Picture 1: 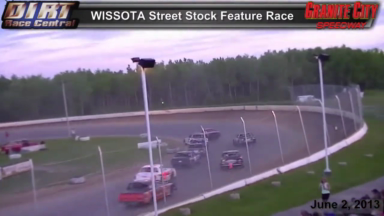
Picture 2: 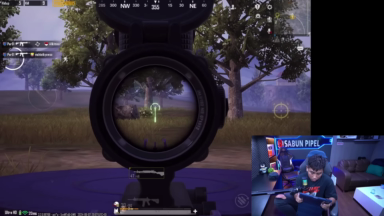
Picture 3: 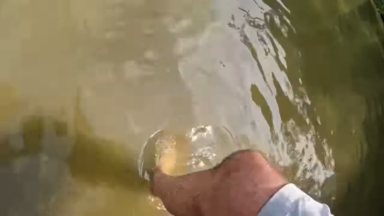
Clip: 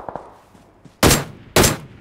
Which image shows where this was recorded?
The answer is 2